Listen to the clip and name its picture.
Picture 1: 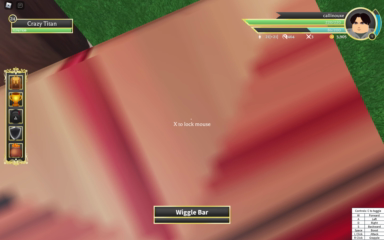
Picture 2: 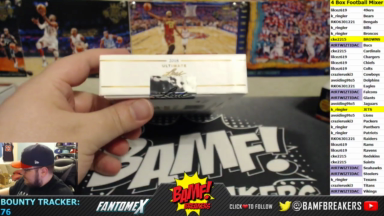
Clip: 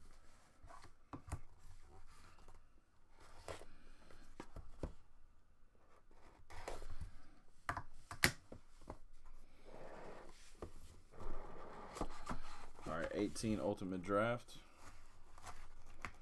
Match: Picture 2